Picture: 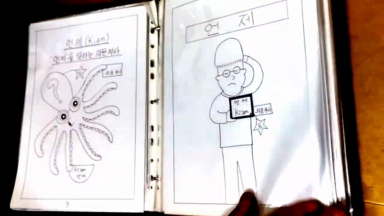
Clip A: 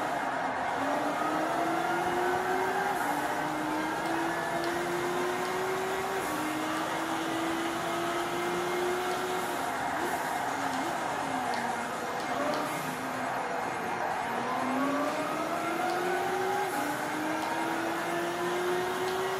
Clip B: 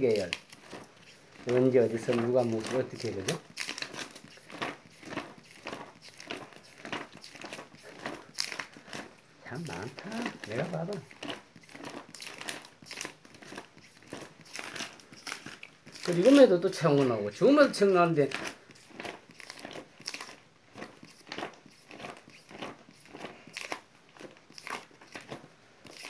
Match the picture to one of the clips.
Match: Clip B